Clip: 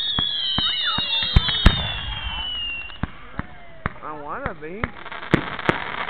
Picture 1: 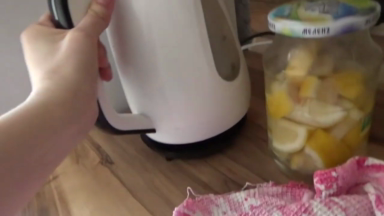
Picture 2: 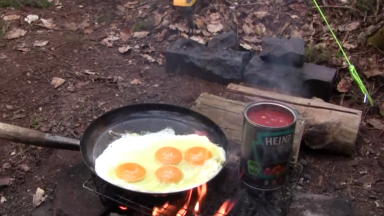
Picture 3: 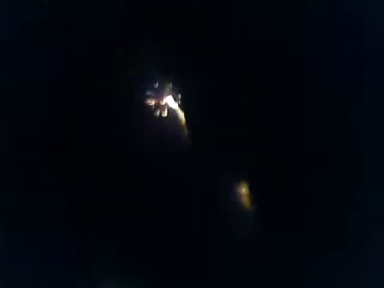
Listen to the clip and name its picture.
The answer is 3